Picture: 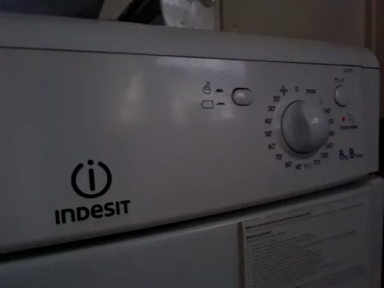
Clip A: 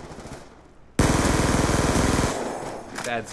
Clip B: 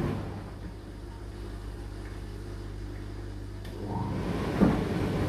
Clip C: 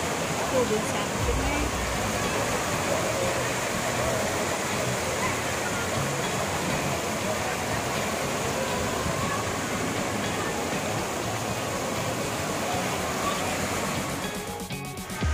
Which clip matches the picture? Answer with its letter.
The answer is B